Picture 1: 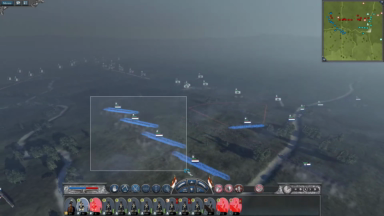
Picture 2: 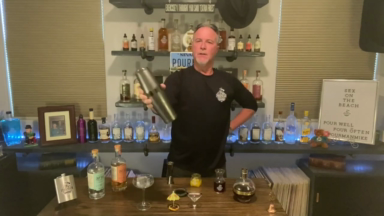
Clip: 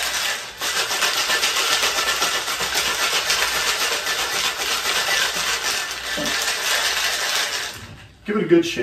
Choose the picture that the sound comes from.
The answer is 2